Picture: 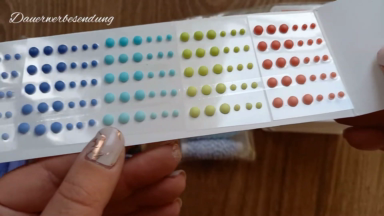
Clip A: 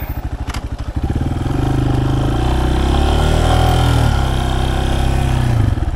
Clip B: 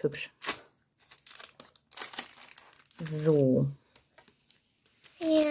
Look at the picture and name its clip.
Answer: B